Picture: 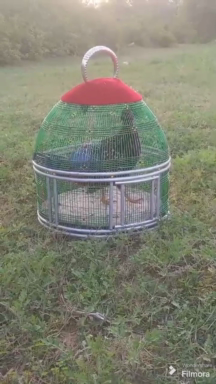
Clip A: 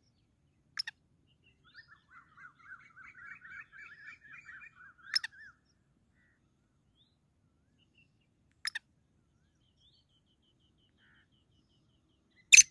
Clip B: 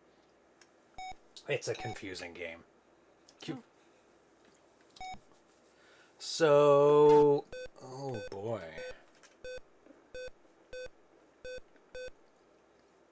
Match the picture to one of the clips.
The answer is A